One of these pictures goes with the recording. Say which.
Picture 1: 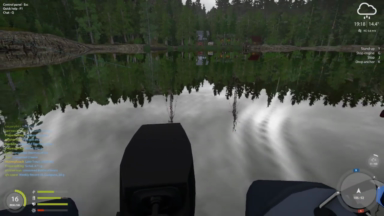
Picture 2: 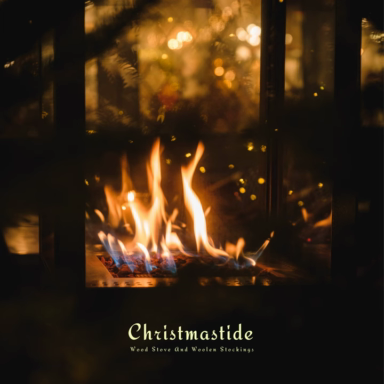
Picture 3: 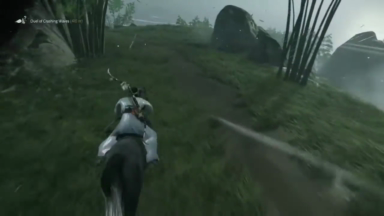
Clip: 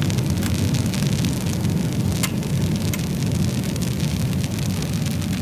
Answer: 2